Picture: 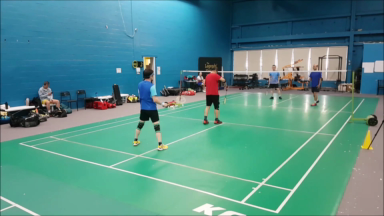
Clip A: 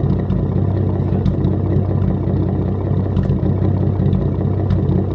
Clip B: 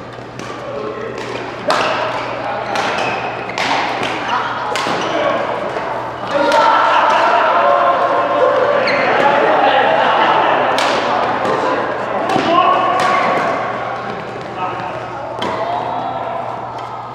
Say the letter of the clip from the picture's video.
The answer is B